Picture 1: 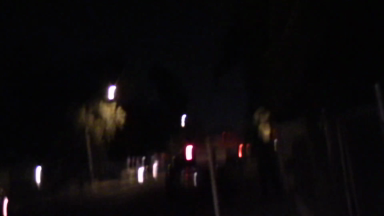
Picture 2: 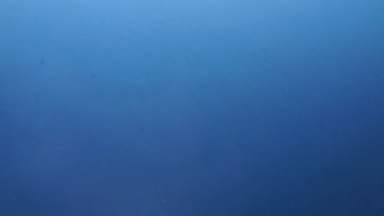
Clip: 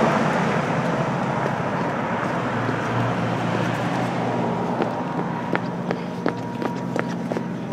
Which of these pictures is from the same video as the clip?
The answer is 1